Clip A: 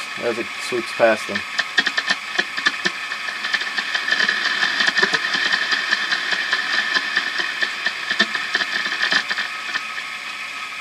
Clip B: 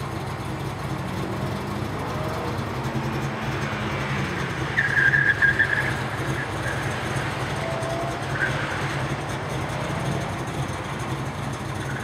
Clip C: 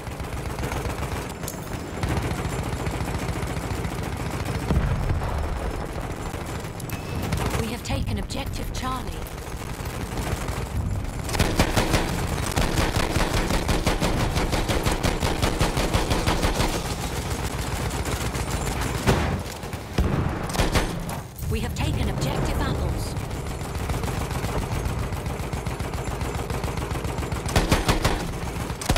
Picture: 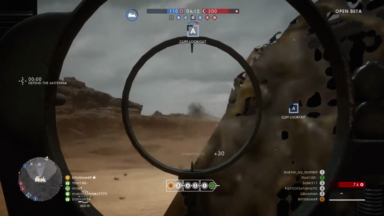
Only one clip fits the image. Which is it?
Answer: C